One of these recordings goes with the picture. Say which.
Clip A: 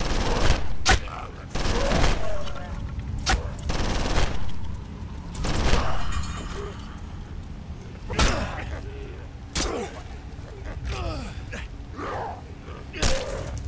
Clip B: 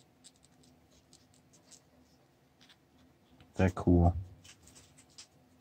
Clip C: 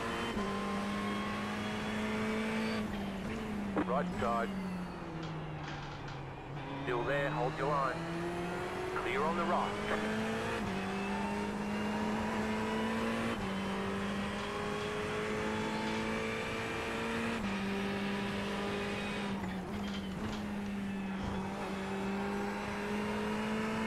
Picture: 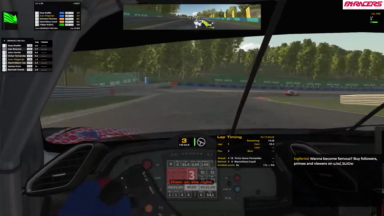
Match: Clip C